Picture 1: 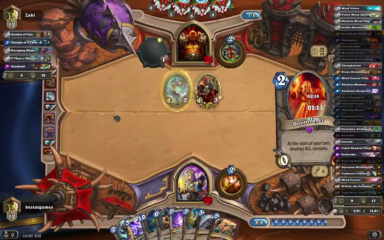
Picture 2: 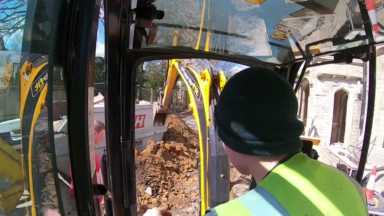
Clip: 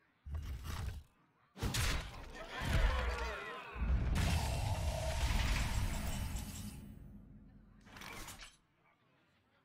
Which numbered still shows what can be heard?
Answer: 1